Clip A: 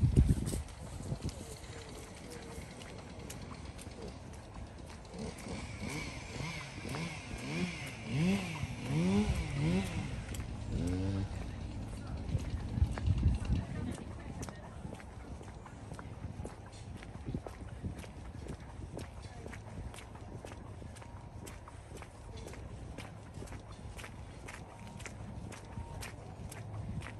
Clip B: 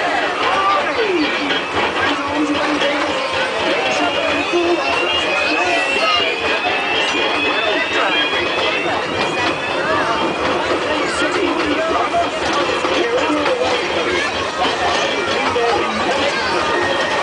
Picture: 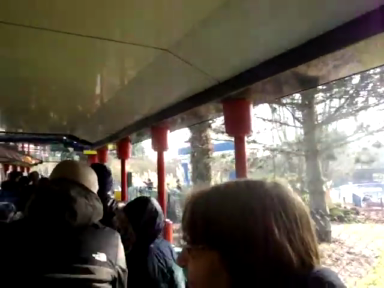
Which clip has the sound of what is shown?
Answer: B